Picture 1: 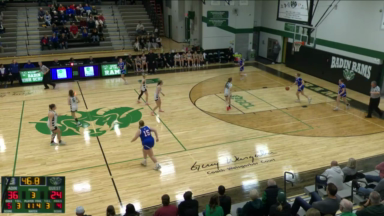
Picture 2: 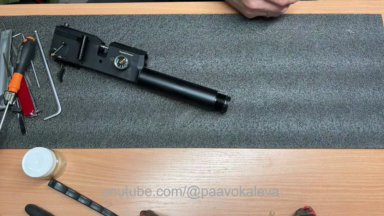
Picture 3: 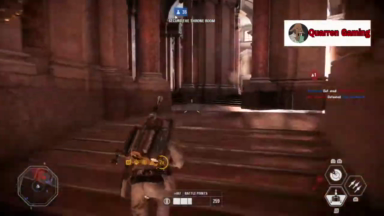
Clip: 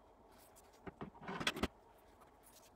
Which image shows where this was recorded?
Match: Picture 2